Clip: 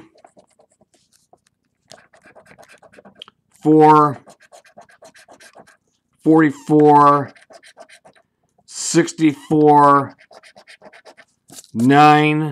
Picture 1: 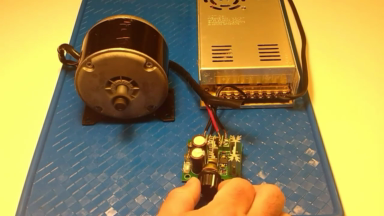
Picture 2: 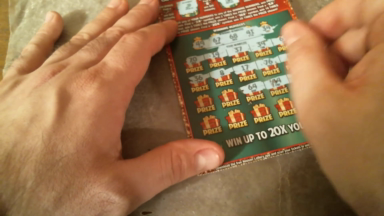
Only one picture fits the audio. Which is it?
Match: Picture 2